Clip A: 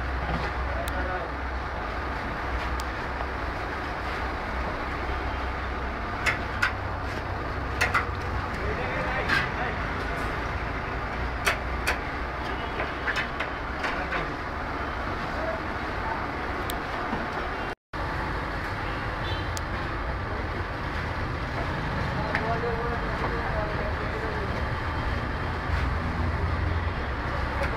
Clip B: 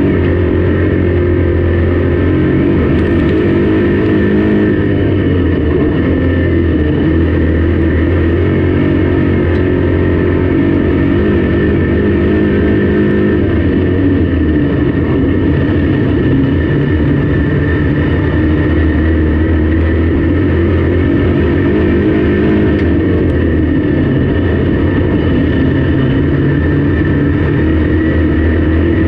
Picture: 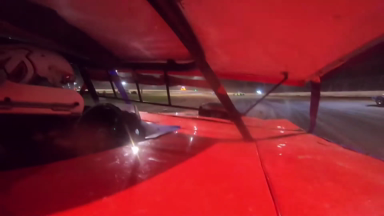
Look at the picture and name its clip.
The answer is B